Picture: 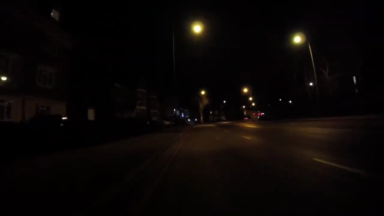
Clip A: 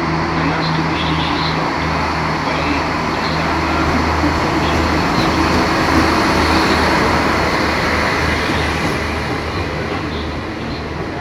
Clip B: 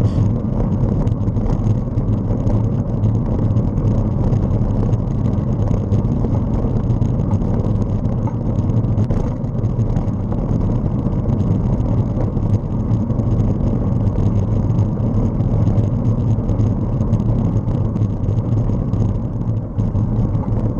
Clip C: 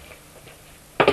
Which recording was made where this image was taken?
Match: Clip B